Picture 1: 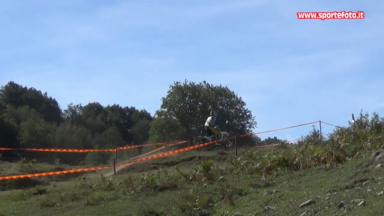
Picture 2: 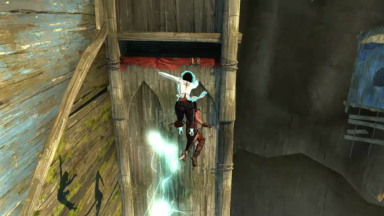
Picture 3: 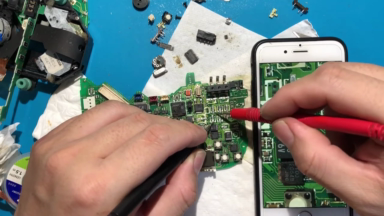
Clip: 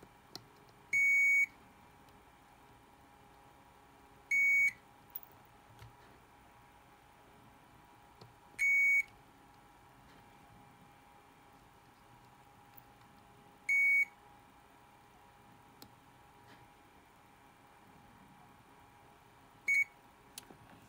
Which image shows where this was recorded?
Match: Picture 3